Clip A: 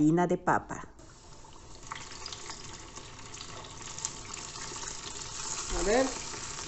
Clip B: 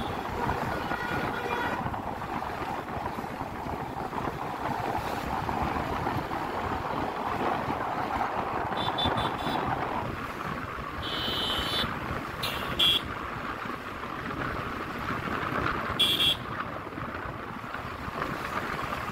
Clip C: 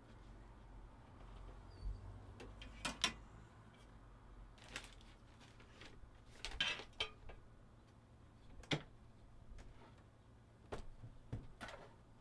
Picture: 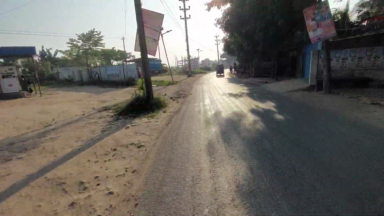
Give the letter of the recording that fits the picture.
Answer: B